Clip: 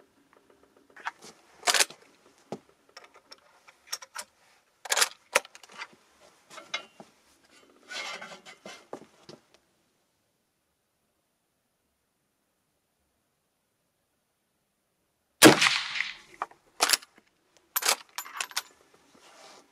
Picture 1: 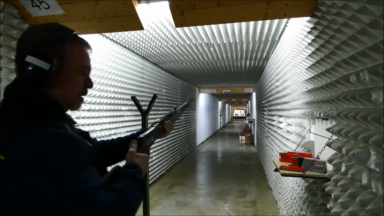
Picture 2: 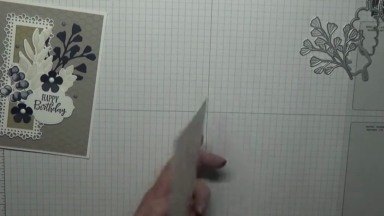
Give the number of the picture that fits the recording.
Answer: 1